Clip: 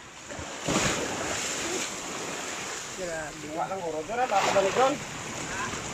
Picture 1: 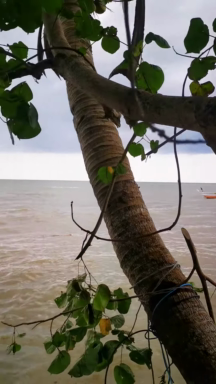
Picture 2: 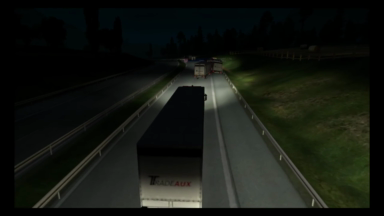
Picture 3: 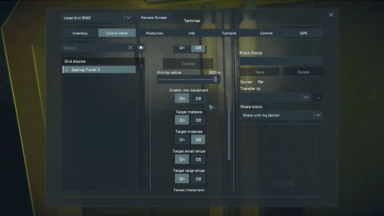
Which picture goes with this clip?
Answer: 1